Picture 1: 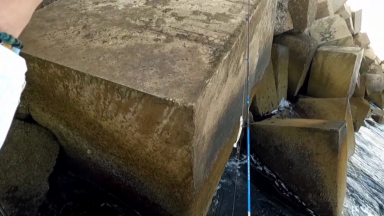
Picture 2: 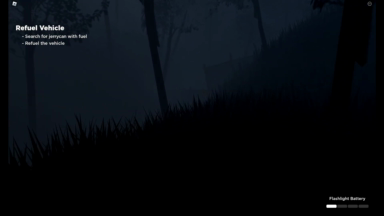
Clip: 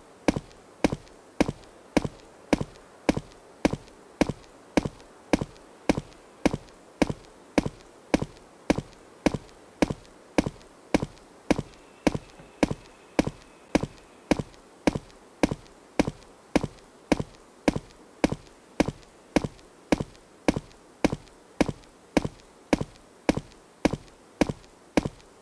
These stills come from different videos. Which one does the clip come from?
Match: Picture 2